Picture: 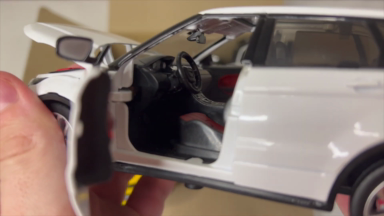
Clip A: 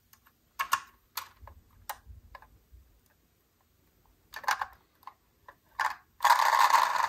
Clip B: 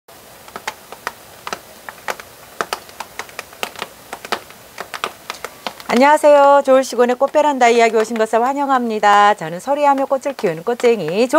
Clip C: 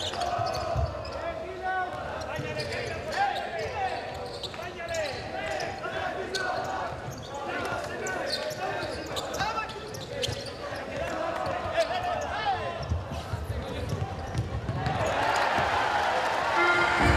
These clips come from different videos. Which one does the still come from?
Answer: A